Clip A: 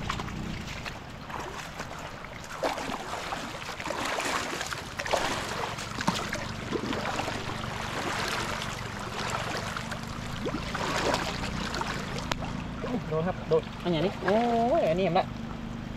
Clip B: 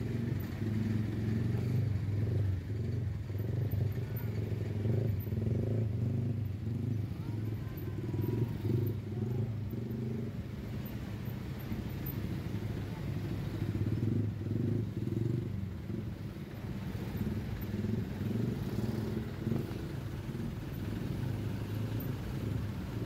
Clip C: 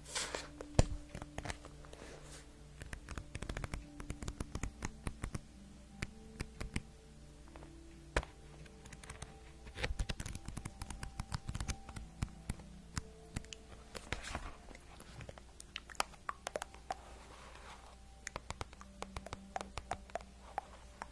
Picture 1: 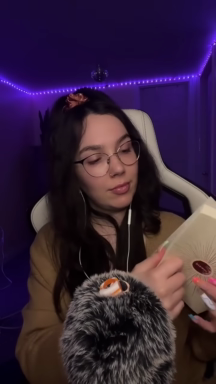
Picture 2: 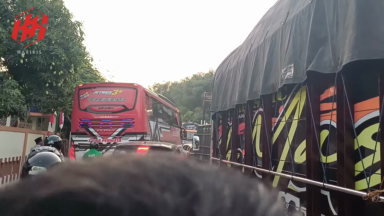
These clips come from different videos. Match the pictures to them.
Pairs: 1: C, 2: B